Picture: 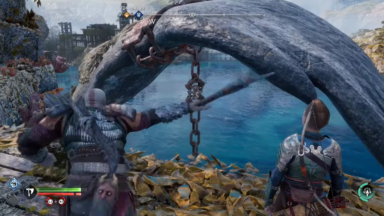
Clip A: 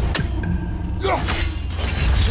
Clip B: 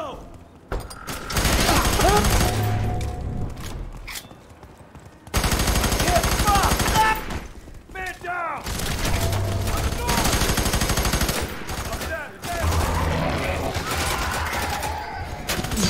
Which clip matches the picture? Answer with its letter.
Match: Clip A